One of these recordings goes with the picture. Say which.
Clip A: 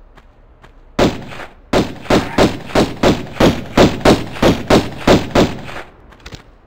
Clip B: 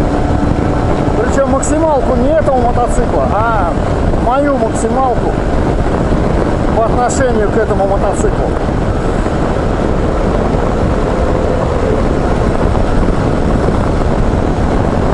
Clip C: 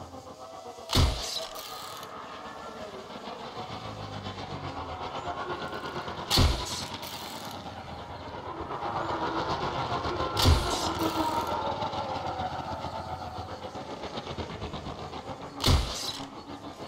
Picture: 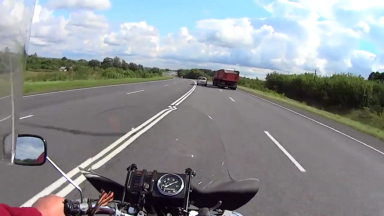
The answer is B